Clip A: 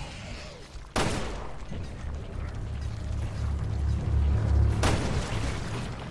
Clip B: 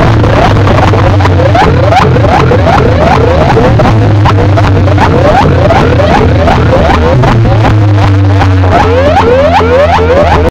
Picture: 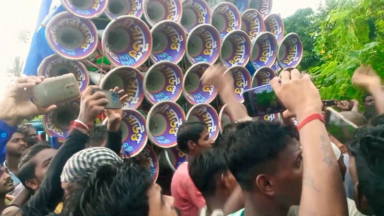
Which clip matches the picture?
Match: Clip B